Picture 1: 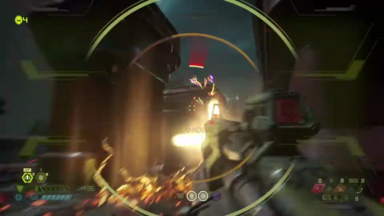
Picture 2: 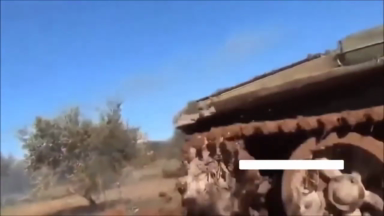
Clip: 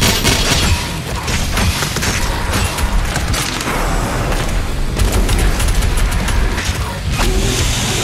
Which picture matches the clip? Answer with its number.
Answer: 1